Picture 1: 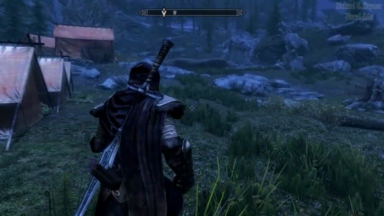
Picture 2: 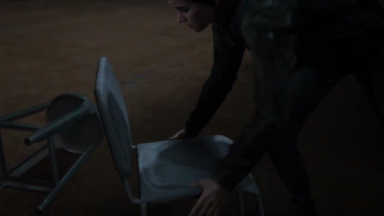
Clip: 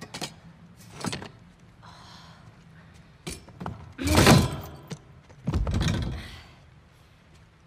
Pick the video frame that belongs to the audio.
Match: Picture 2